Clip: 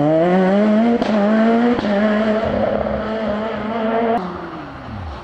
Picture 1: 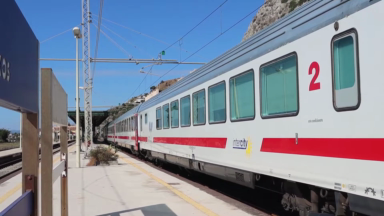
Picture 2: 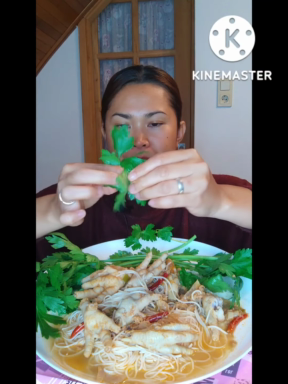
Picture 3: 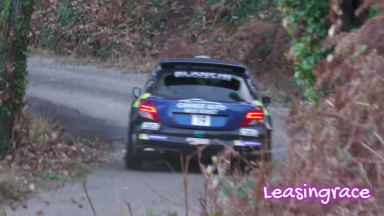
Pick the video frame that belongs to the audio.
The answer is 3